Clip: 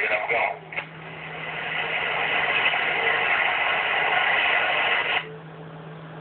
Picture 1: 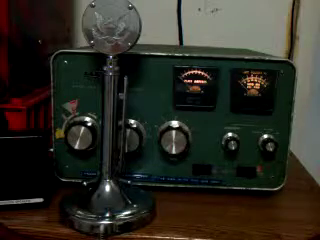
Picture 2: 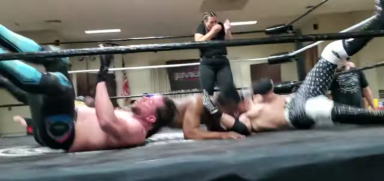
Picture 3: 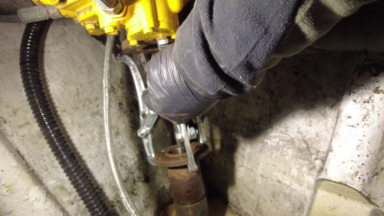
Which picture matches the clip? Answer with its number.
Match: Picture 1